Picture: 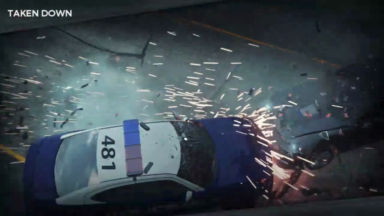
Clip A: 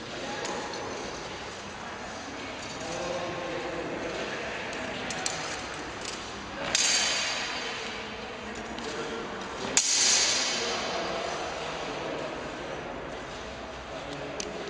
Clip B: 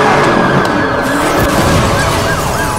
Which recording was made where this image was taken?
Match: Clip B